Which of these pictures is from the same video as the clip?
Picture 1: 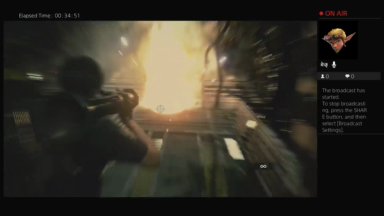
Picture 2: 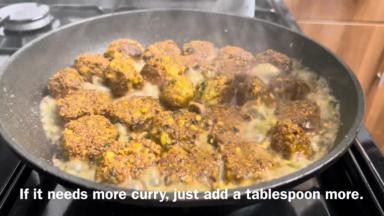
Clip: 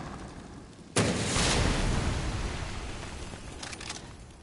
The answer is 1